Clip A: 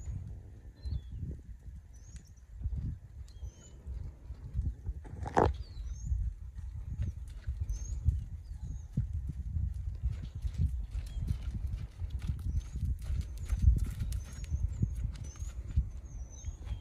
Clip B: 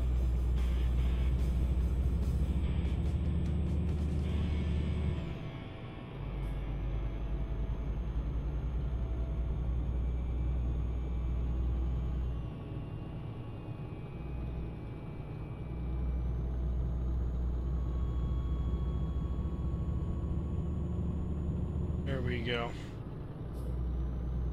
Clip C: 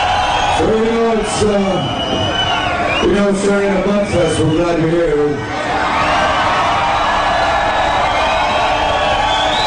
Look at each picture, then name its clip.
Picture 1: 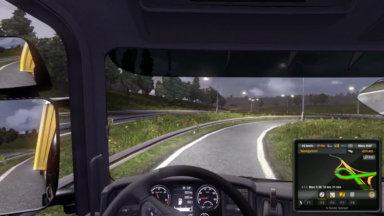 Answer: B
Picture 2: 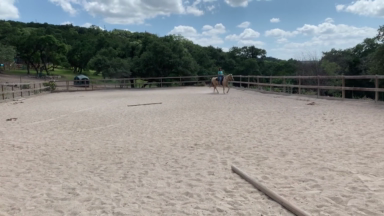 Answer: A